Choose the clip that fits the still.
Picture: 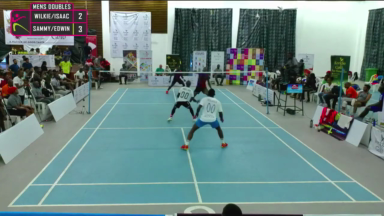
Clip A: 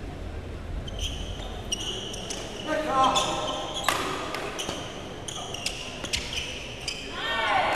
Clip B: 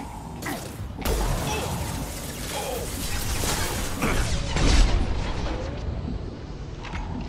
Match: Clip A